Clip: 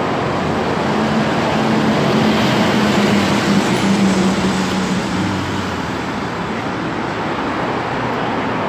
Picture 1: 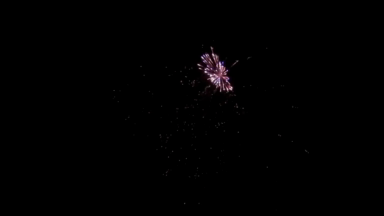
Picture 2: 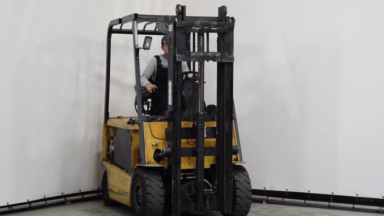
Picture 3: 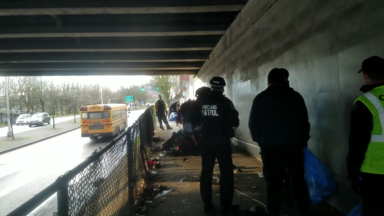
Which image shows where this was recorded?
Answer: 3